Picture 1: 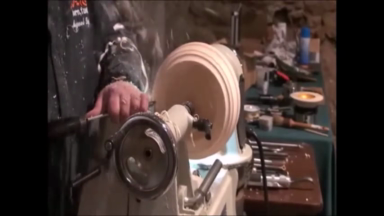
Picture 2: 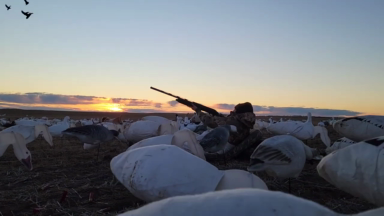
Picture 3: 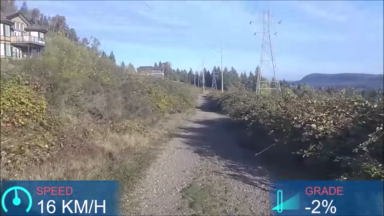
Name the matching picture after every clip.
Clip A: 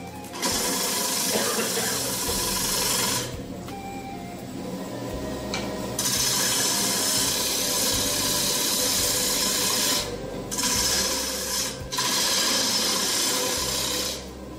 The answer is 1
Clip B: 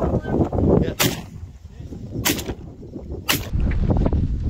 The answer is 2